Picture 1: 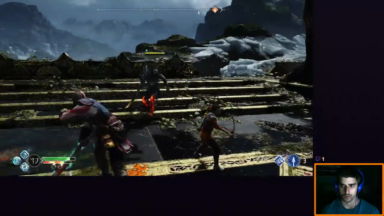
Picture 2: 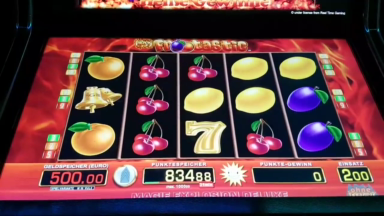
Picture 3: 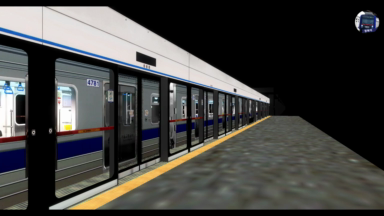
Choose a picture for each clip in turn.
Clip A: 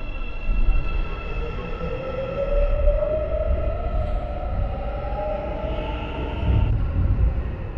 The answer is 3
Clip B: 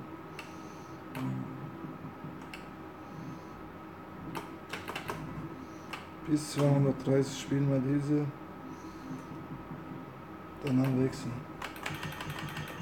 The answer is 2